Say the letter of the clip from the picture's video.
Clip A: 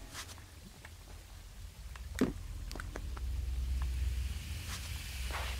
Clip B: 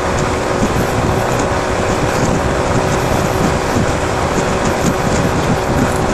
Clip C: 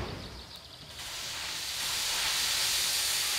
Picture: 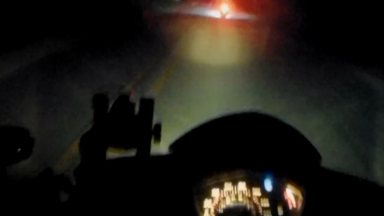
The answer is B